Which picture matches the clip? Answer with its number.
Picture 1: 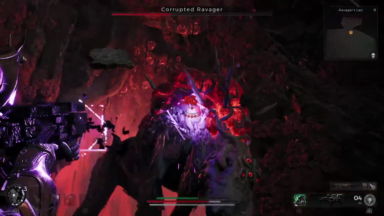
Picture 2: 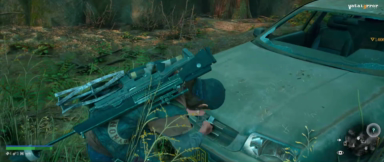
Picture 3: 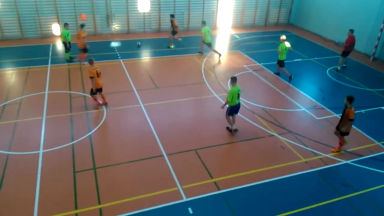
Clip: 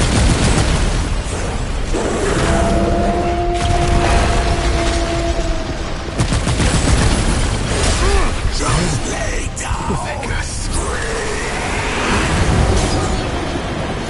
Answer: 1